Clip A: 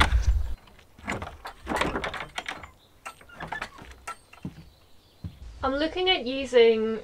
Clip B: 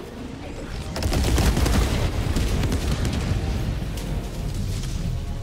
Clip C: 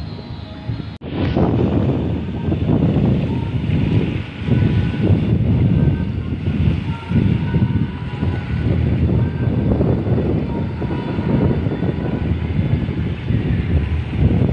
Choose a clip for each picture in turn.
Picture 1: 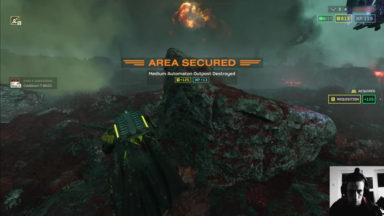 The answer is B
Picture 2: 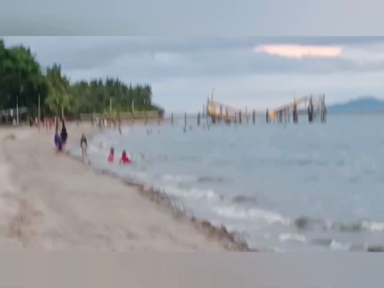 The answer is C